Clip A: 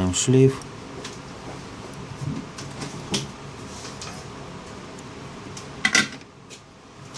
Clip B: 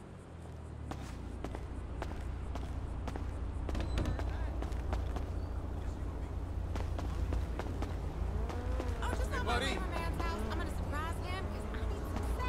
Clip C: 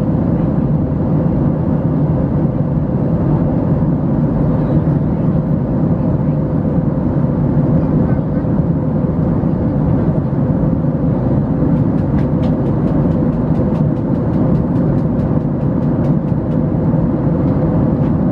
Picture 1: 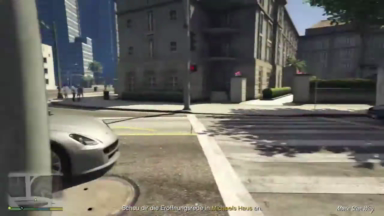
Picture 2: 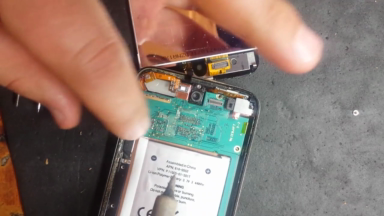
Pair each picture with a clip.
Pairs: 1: B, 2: A